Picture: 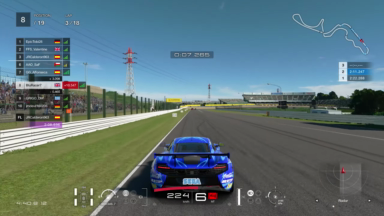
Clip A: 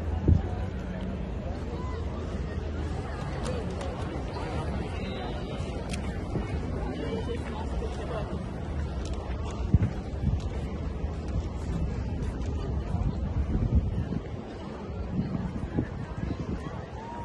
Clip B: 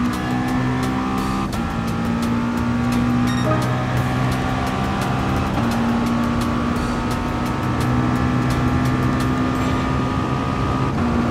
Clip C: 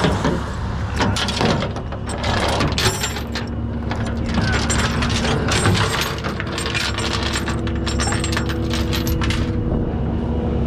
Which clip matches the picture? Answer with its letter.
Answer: B